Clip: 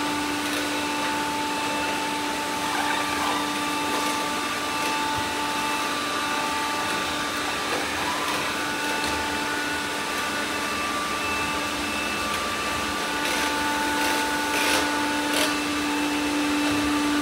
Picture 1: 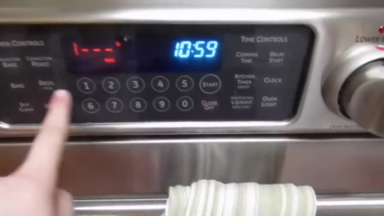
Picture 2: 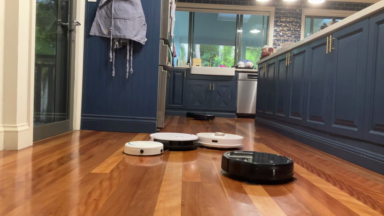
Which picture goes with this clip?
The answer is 2